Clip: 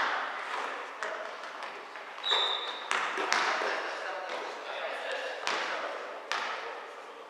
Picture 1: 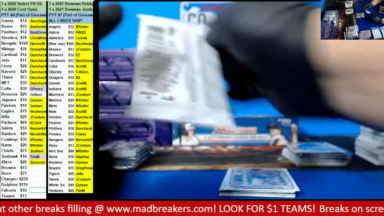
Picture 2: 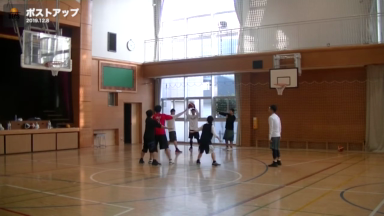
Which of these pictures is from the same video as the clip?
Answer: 2